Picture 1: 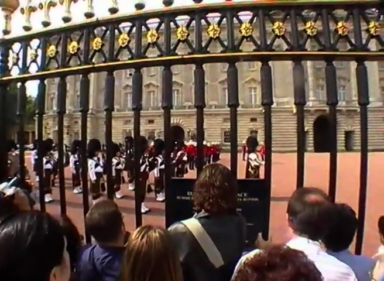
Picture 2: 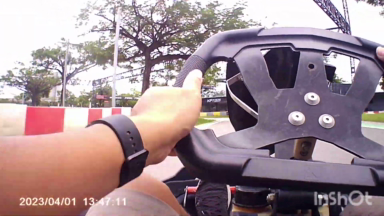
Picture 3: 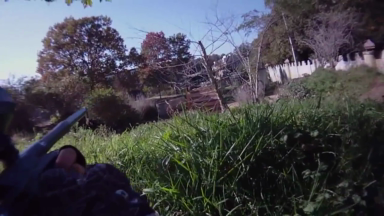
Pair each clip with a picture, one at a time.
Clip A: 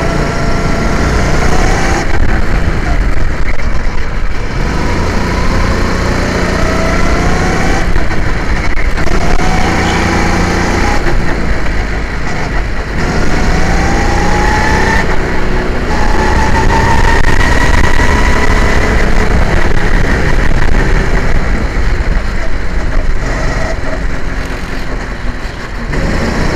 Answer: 2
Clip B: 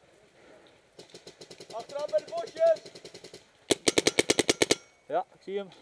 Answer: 3